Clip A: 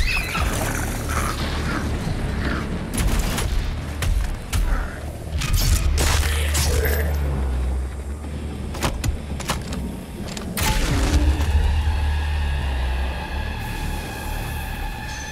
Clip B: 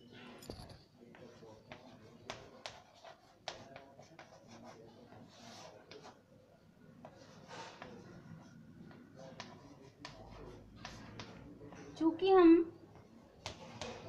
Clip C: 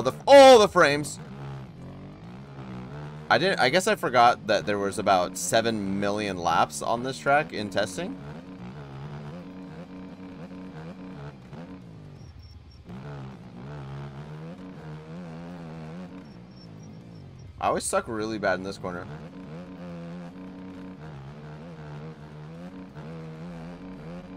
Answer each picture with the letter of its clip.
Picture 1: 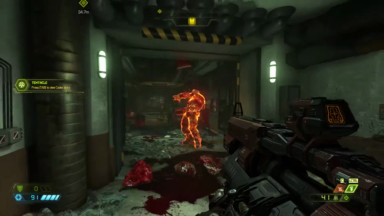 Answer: A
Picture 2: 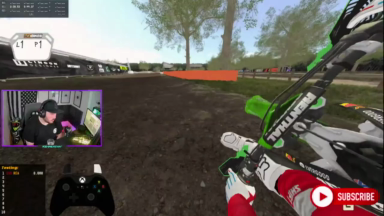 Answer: C